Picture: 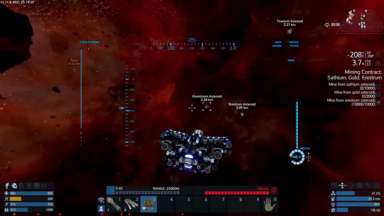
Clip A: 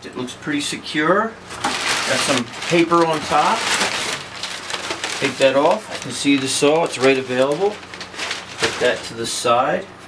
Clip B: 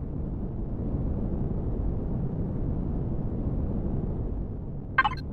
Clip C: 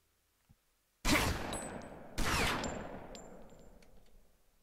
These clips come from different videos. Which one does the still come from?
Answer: B